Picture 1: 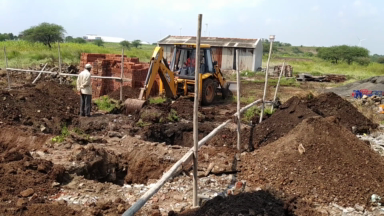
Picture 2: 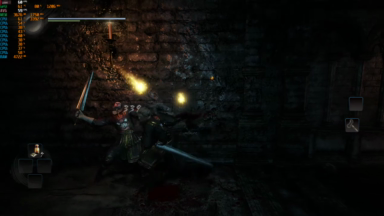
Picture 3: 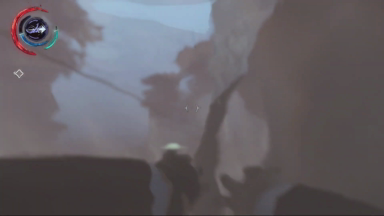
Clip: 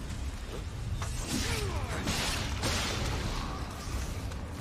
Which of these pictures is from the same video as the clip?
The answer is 2